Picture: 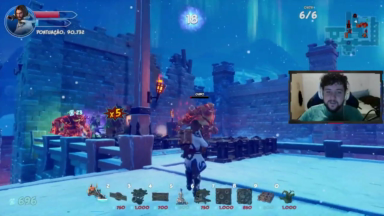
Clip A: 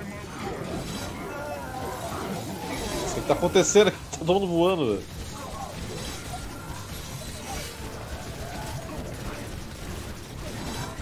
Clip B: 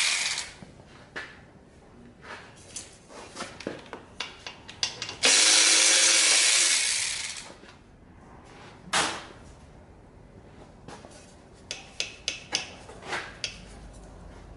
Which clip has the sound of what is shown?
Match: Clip A